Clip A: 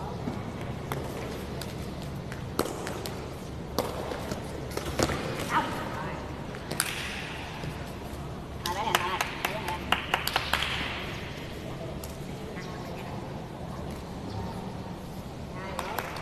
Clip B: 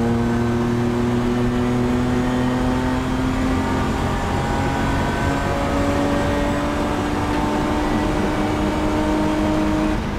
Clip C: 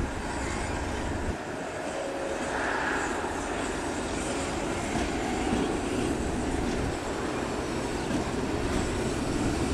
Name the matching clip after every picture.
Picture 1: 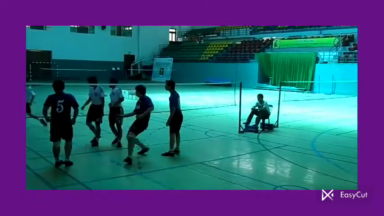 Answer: A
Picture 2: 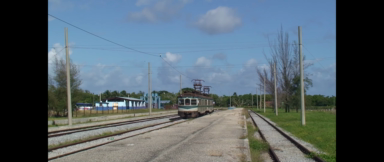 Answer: C